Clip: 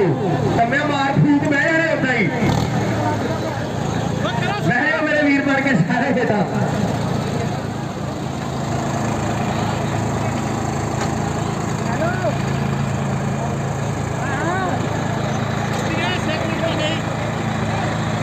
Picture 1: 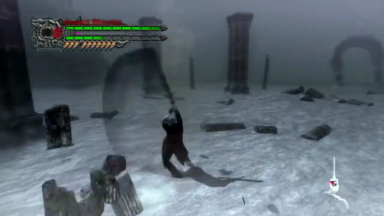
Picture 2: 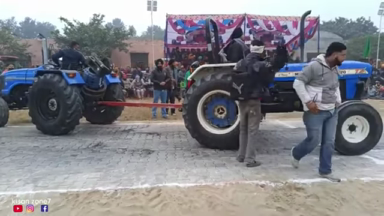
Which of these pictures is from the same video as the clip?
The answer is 2